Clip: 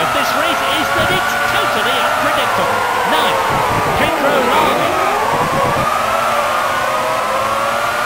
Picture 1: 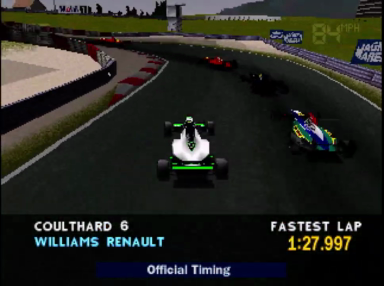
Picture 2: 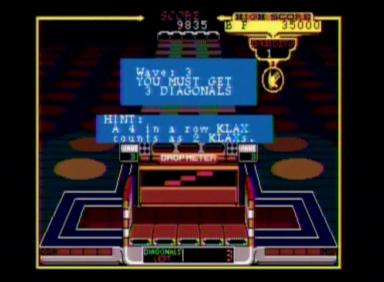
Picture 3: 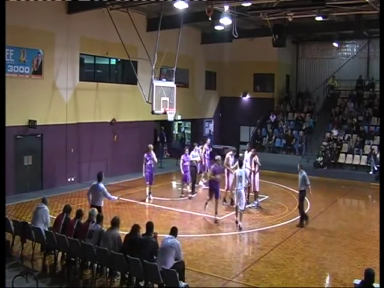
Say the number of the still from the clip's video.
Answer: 1